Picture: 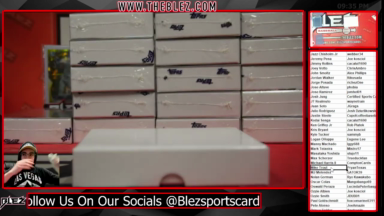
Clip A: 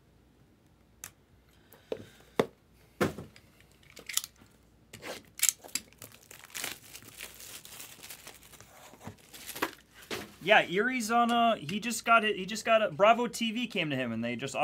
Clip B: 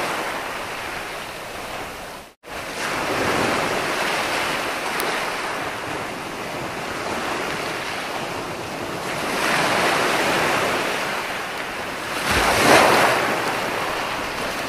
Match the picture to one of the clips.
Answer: A